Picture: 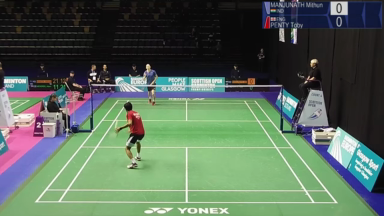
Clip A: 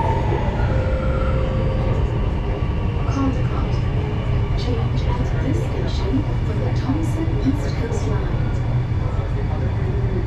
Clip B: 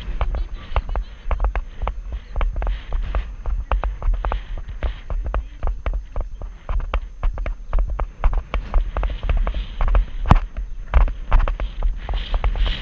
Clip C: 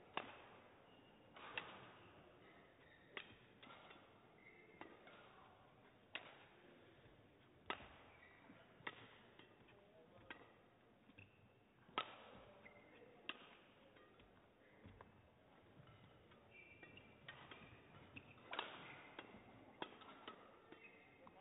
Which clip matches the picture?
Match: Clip C